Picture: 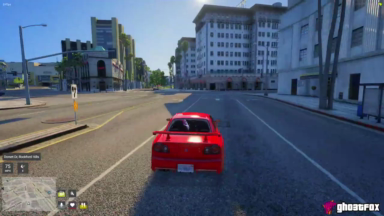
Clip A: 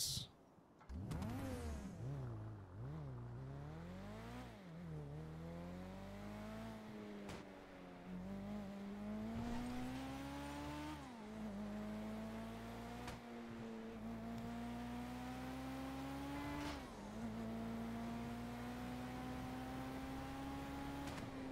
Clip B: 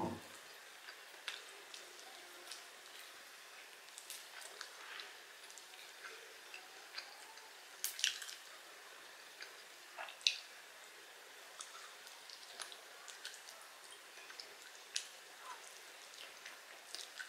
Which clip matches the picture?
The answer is A